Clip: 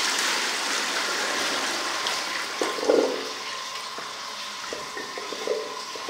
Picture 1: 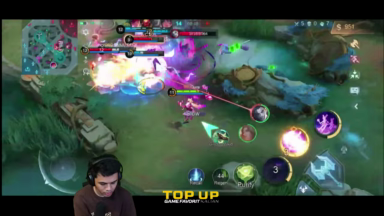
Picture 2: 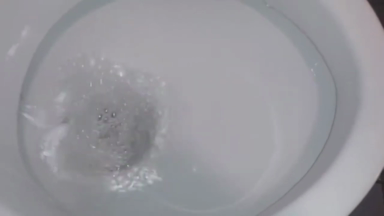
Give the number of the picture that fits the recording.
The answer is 2